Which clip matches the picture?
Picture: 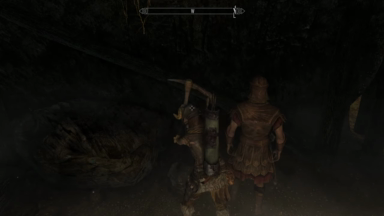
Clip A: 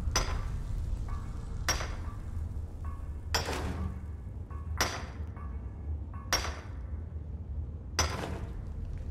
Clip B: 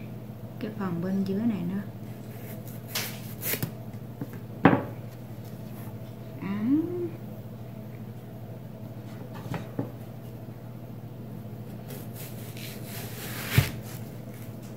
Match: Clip A